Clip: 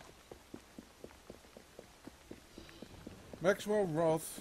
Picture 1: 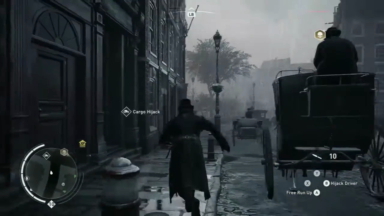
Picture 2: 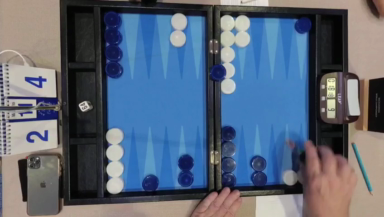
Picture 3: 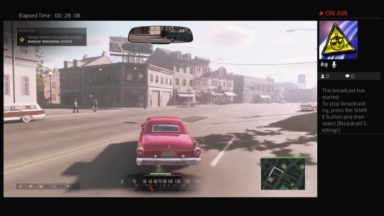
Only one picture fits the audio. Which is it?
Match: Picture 1